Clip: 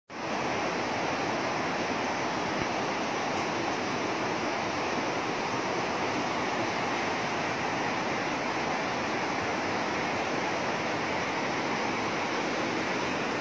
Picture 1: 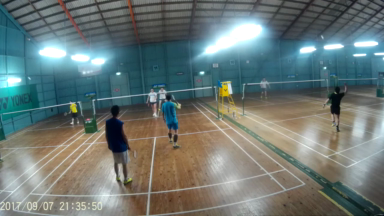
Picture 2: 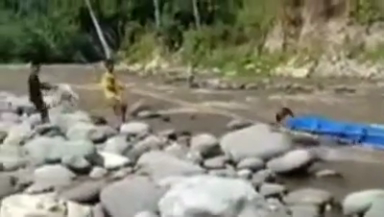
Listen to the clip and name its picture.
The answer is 2